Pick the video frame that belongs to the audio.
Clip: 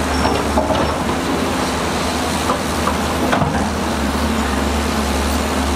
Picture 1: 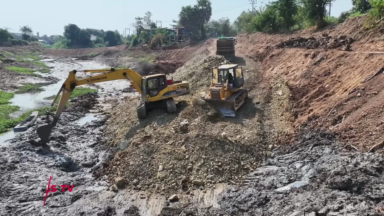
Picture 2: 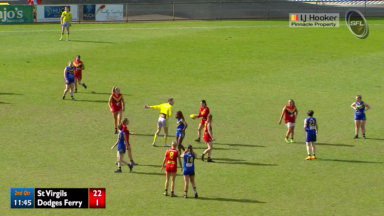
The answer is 1